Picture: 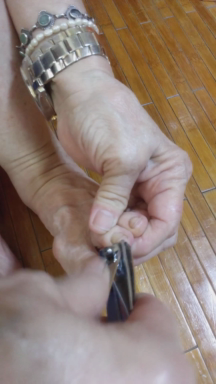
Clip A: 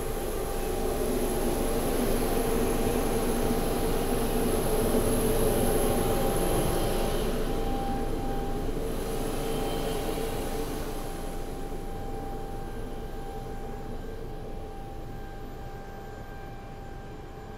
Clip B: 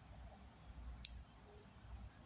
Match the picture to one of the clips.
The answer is B